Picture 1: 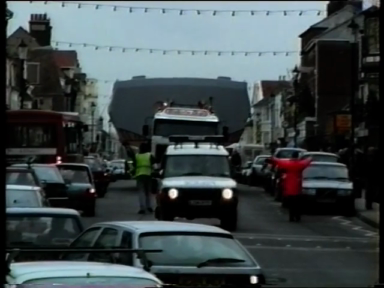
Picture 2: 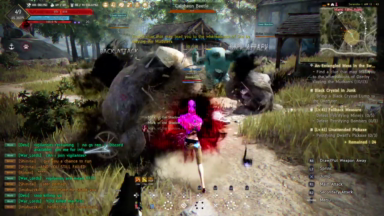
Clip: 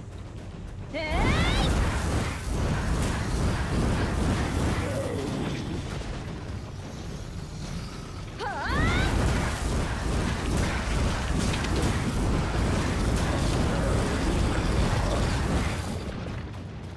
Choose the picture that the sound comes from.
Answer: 2